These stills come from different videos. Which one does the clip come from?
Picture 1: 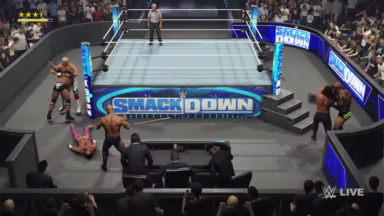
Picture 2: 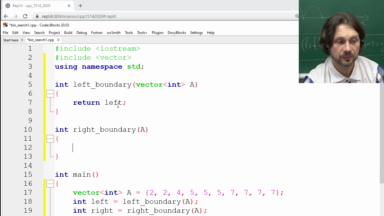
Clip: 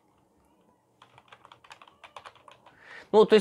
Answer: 2